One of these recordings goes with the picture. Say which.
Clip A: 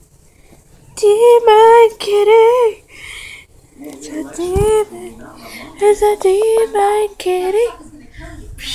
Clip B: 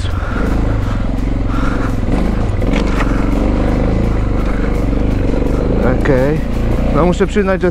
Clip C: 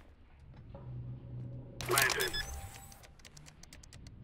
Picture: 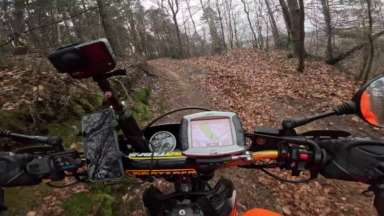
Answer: B